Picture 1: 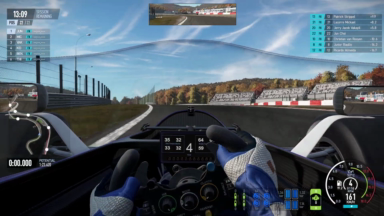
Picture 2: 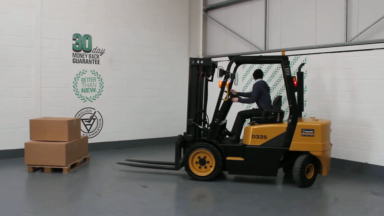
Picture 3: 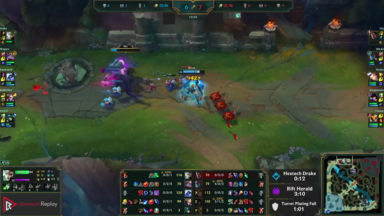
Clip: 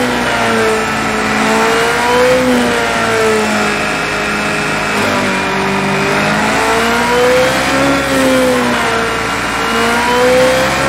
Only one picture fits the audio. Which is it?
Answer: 1